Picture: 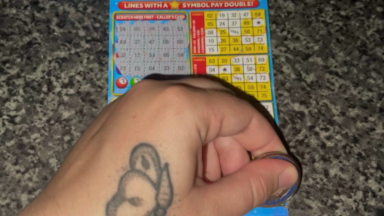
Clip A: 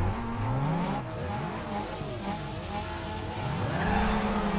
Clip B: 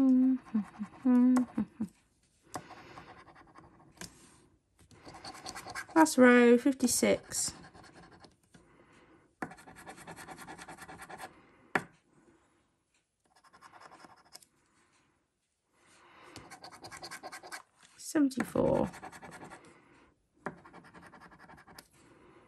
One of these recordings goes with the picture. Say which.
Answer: B